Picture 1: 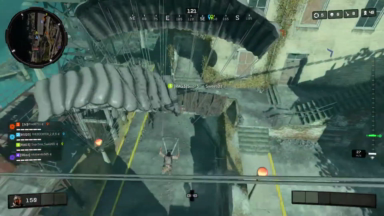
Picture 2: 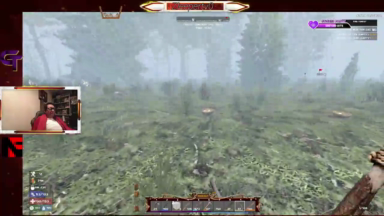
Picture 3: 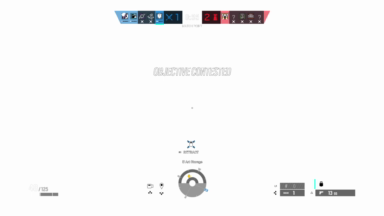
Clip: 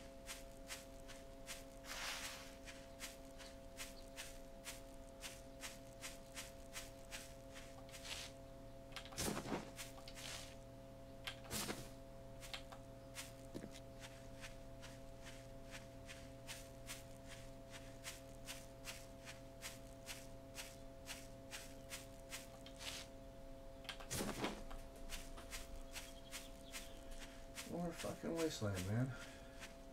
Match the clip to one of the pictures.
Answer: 2